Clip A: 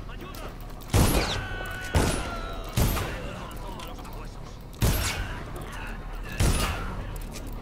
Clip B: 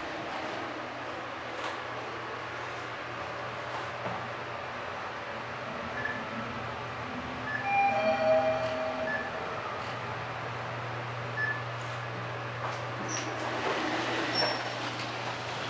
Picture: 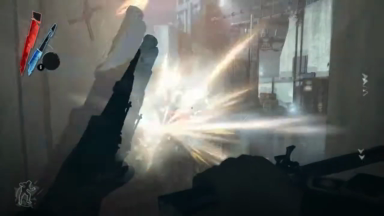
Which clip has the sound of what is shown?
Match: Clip A